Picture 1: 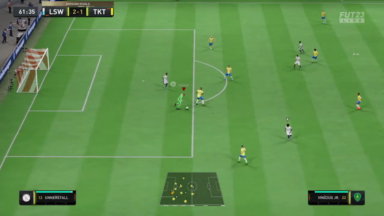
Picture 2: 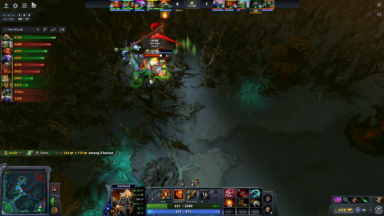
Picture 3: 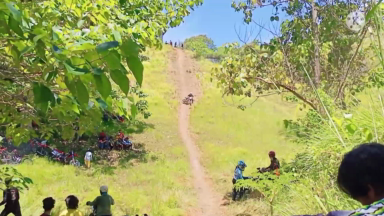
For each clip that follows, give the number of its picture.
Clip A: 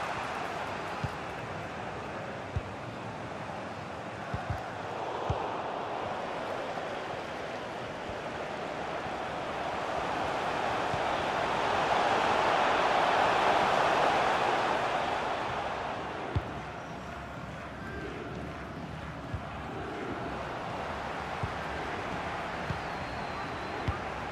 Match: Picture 1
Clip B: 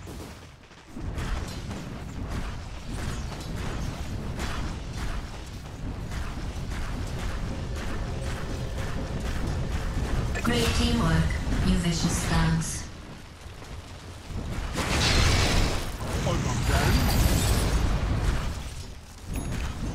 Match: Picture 2